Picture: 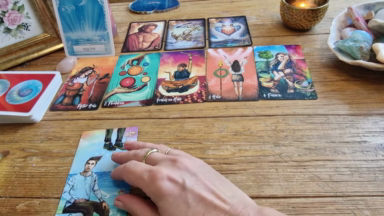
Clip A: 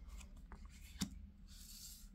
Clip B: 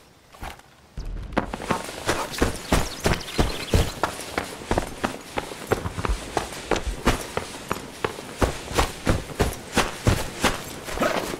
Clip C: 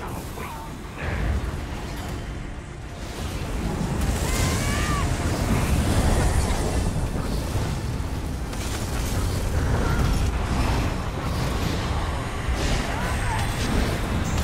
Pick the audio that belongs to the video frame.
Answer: A